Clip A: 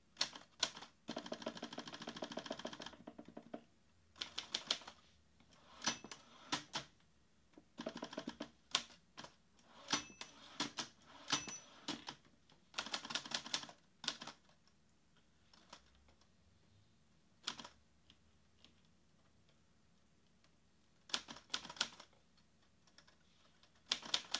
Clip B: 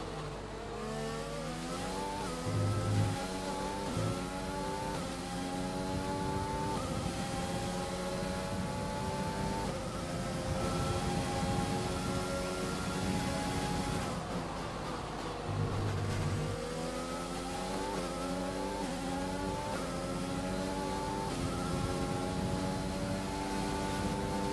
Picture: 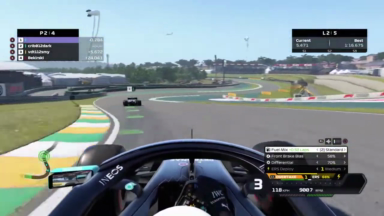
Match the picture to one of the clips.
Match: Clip B